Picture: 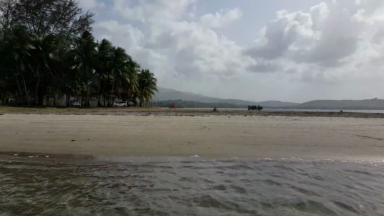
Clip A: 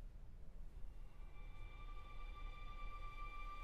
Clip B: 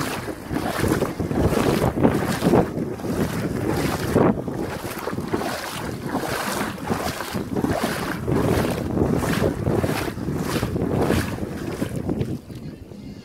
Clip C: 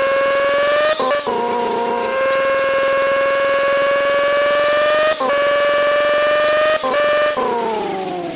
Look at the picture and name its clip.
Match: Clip B